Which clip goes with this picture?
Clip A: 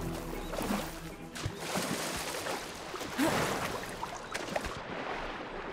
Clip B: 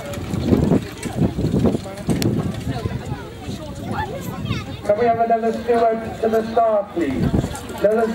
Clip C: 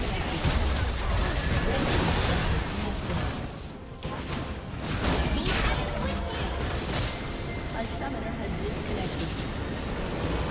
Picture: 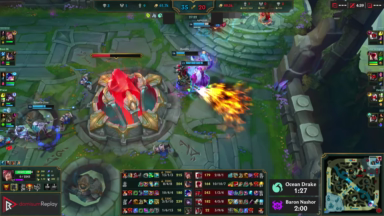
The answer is C